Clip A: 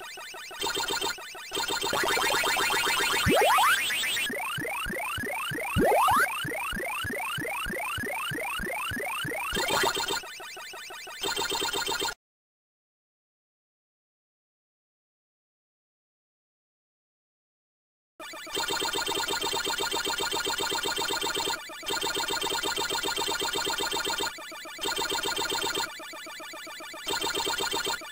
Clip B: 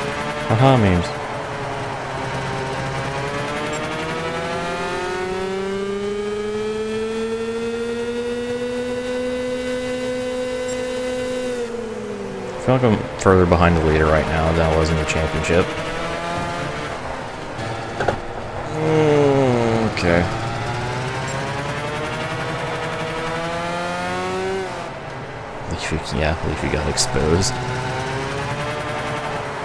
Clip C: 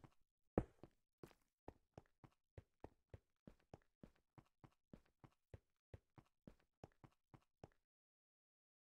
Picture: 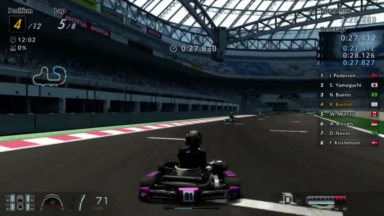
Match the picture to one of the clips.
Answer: B